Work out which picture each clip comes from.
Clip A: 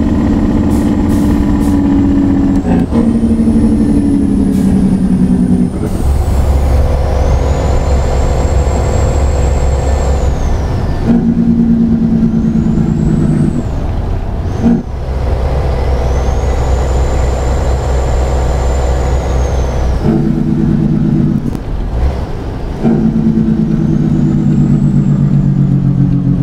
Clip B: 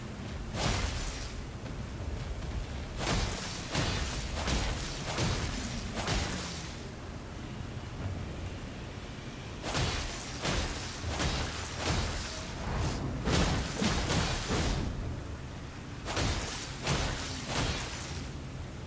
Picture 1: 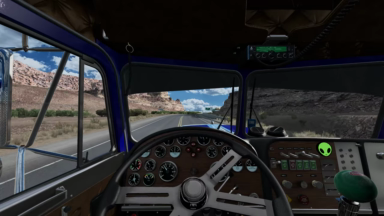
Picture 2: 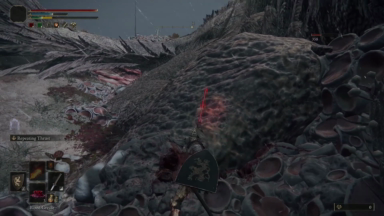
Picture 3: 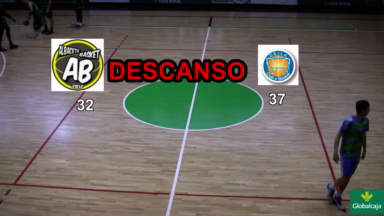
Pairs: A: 1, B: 2